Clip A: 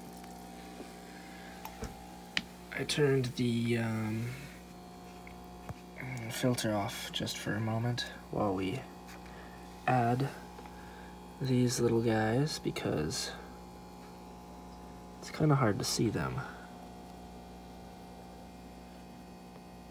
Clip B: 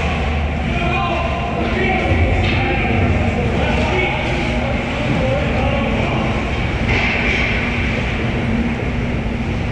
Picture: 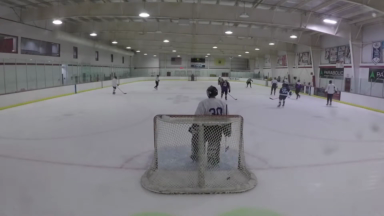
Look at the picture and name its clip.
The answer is B